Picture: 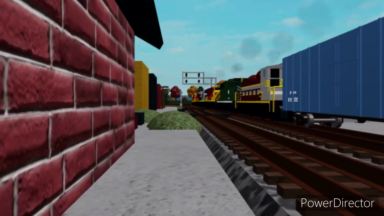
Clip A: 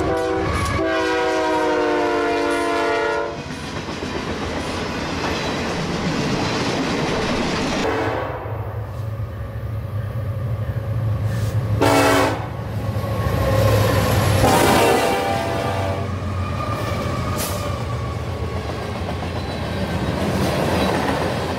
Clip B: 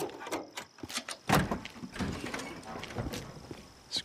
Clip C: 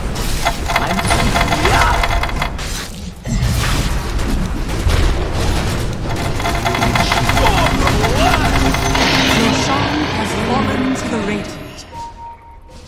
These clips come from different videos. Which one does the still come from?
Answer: A